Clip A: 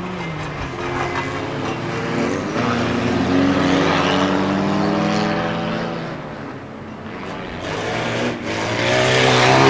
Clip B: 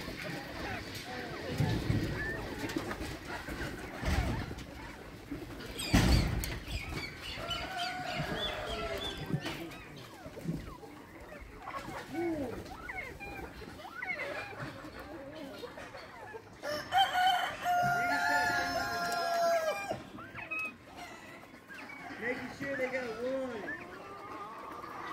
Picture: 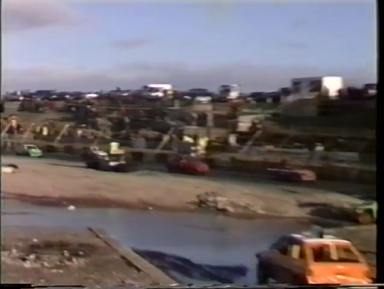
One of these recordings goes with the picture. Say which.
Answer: A